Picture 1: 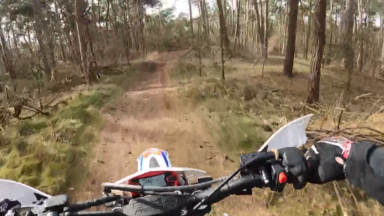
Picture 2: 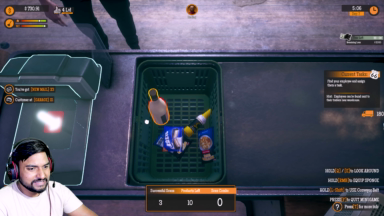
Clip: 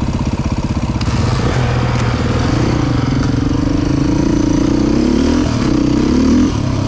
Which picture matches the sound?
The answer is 1